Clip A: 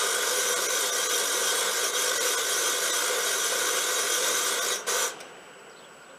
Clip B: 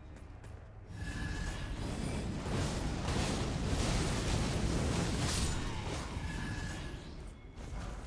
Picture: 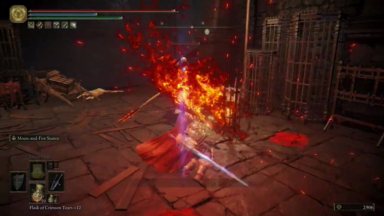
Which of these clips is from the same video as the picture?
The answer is B